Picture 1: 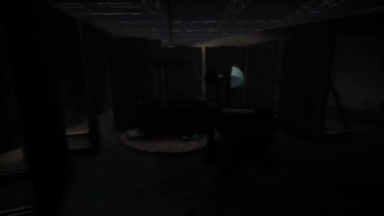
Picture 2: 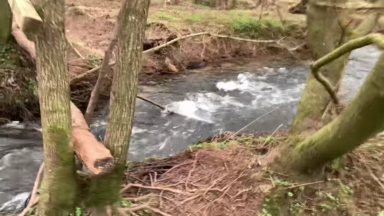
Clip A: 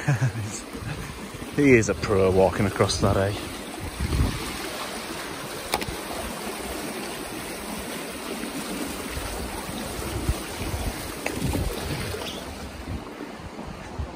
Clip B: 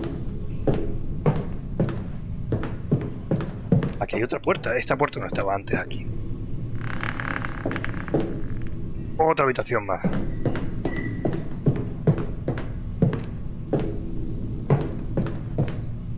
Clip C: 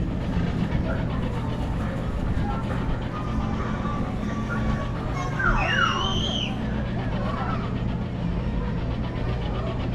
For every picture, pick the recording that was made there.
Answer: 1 B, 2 A